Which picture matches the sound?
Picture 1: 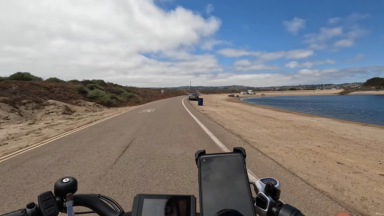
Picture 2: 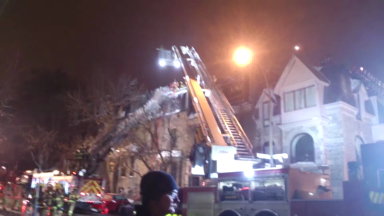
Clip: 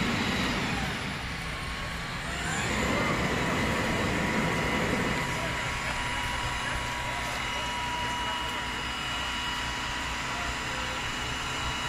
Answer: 2